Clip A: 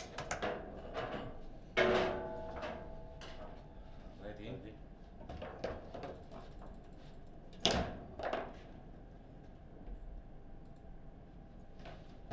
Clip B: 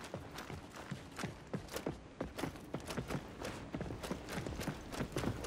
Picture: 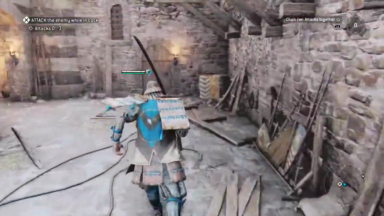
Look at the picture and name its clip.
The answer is B